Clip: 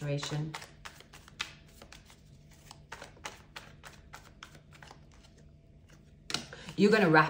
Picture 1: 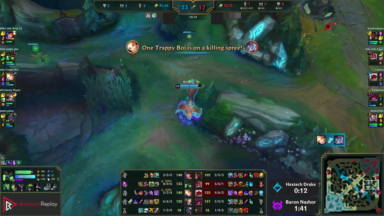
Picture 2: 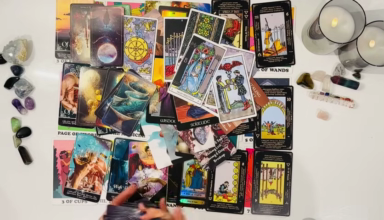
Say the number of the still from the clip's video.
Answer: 2